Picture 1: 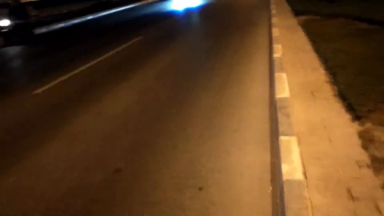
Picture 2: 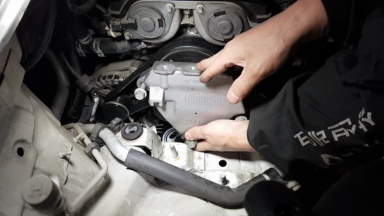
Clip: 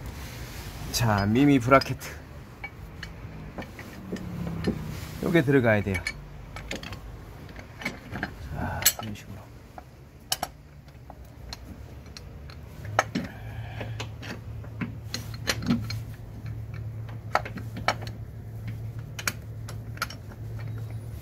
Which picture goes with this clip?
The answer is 2